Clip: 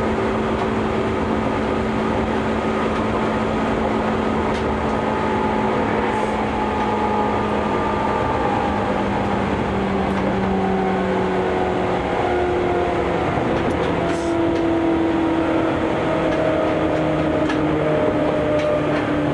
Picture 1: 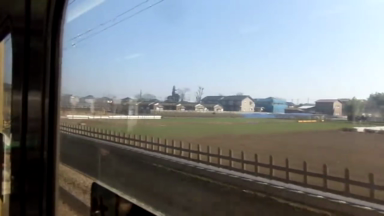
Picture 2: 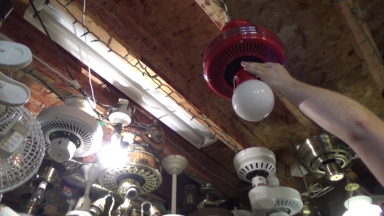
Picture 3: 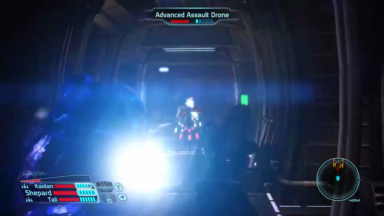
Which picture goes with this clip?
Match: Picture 1